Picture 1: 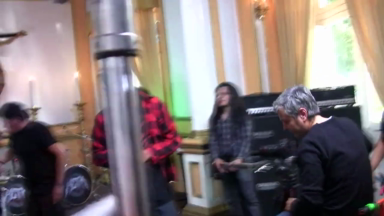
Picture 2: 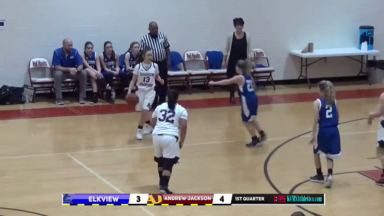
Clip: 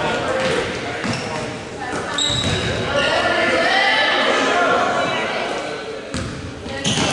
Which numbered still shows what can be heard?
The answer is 2